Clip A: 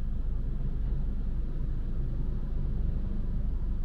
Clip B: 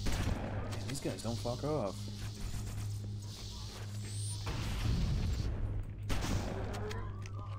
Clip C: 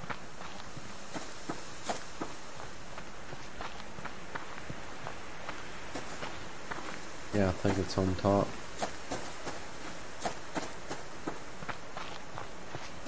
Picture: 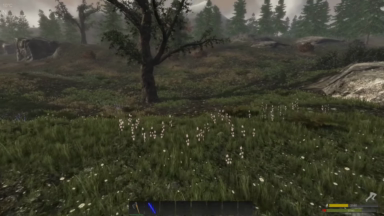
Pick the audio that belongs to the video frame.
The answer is C